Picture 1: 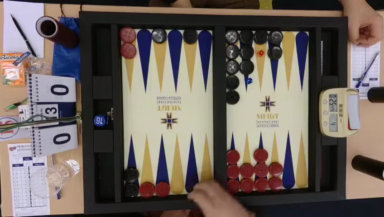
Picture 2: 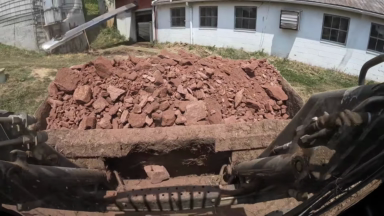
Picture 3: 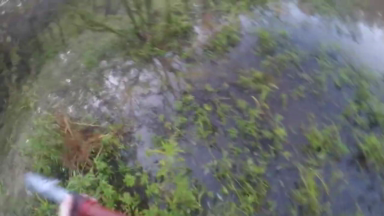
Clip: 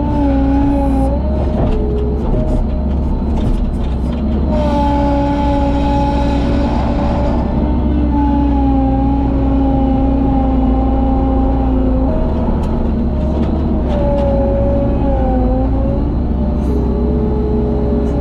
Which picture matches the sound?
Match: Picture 2